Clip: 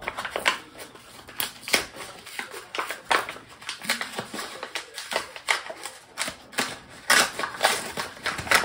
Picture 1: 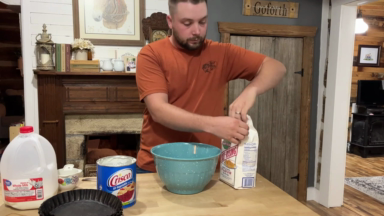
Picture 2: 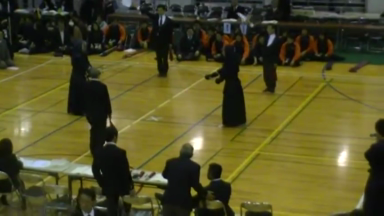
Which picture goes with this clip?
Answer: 1